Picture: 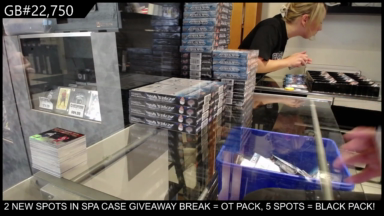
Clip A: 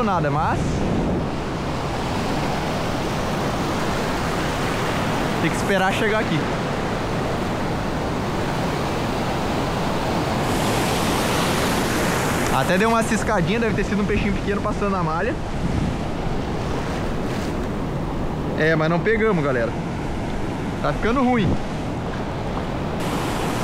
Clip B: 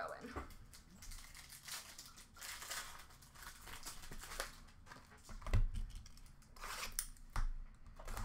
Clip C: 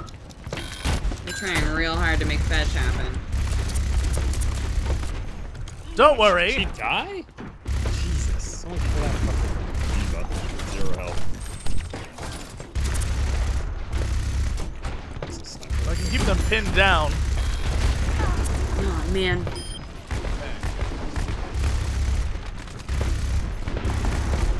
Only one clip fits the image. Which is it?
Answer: B